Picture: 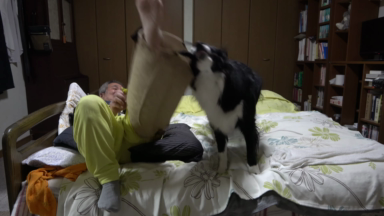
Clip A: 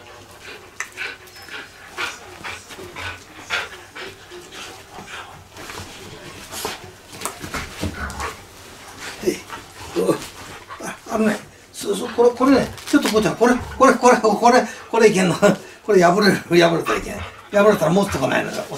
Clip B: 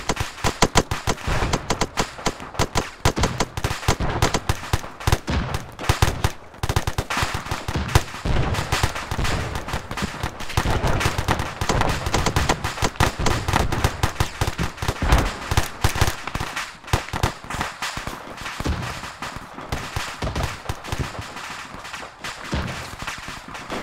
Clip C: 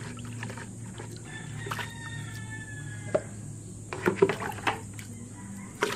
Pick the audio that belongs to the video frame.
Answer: A